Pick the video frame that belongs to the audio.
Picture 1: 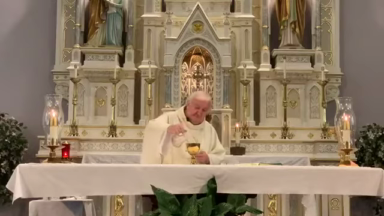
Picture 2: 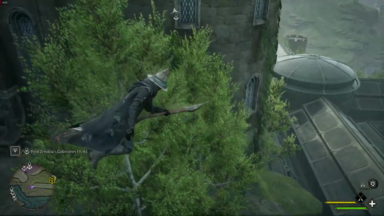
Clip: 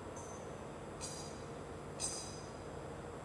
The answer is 1